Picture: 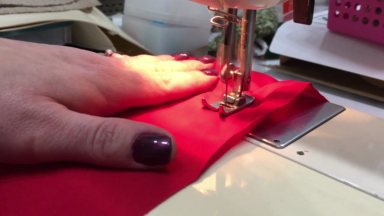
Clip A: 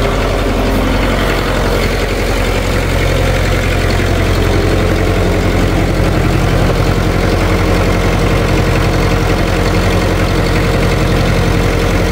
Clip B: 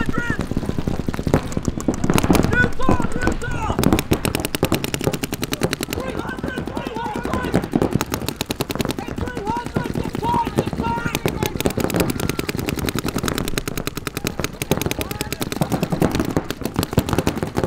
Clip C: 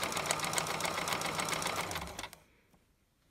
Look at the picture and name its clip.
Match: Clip C